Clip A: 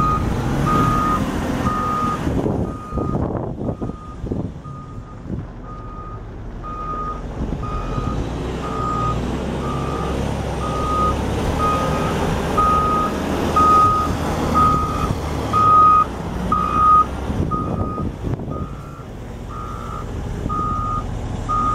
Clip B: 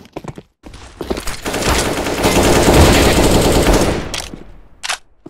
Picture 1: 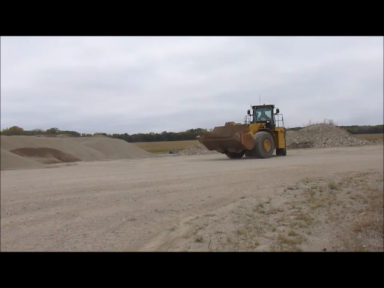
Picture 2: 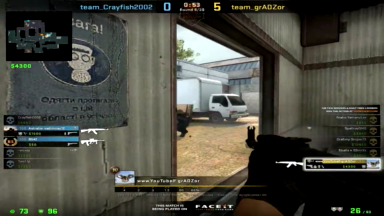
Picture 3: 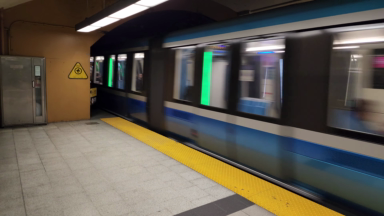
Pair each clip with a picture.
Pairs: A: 1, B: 2